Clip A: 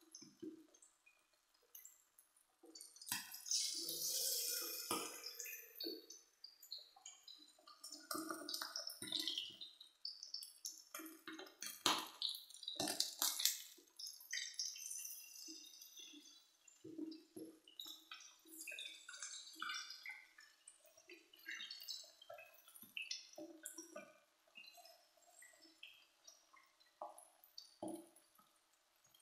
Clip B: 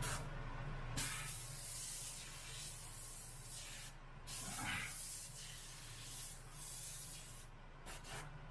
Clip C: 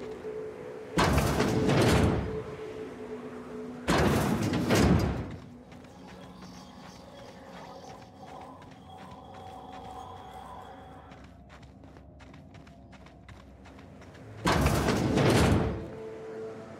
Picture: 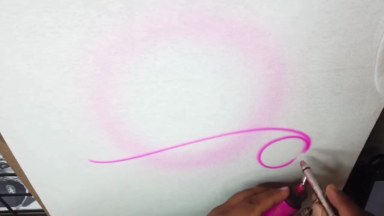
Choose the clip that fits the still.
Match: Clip B